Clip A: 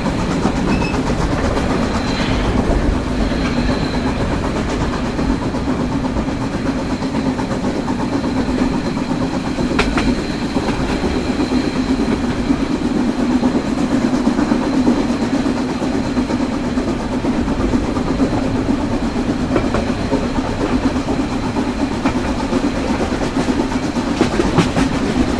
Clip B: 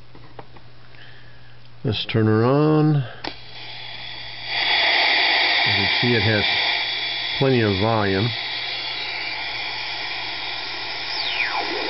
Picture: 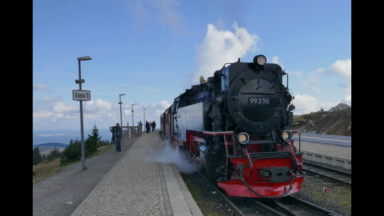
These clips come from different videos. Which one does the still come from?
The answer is A